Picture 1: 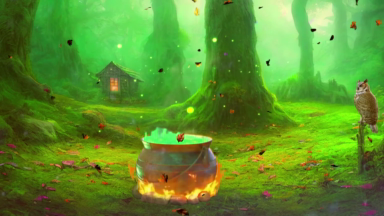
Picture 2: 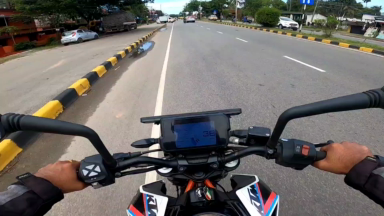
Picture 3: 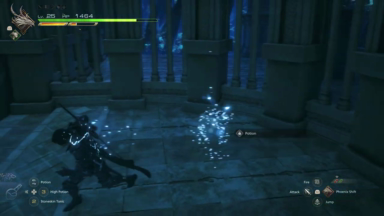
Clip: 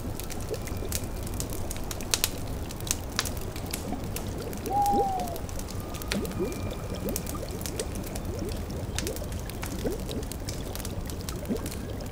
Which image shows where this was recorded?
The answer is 1